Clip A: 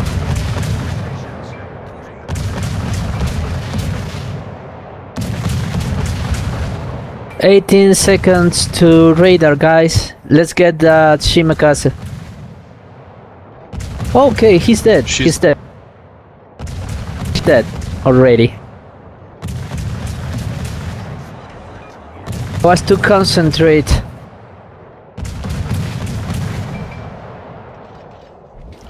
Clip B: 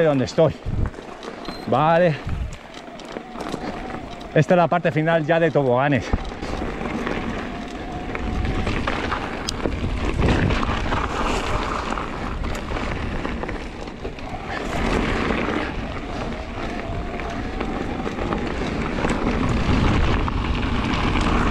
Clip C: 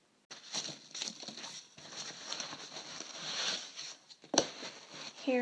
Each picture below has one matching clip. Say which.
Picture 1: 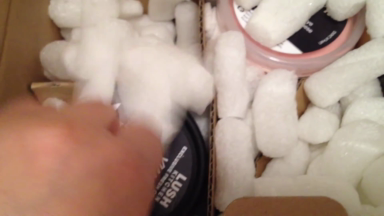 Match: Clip C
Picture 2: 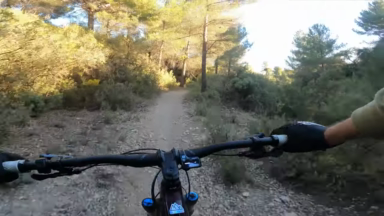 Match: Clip B